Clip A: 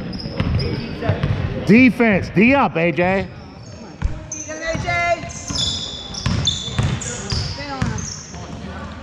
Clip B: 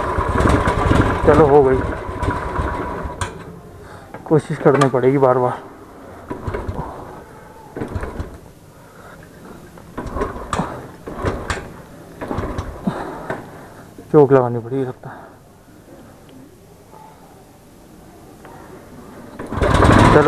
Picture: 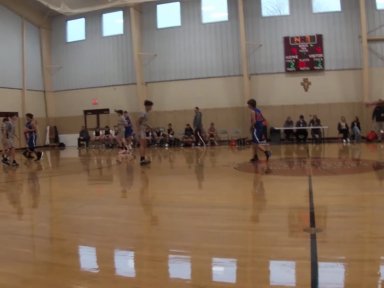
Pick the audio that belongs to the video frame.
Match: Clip A